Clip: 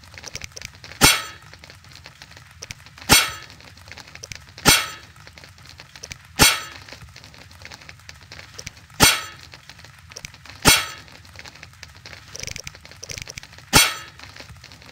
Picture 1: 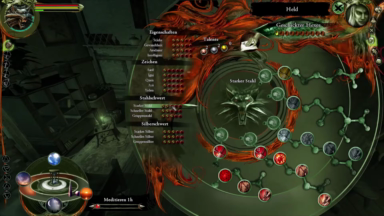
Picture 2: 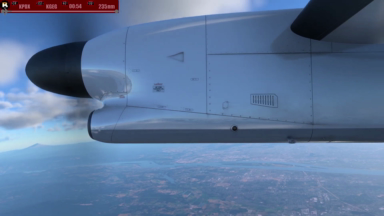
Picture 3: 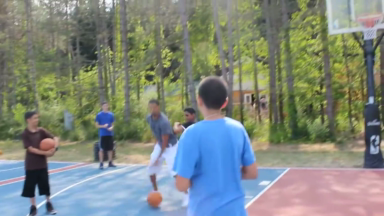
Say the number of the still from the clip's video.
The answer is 1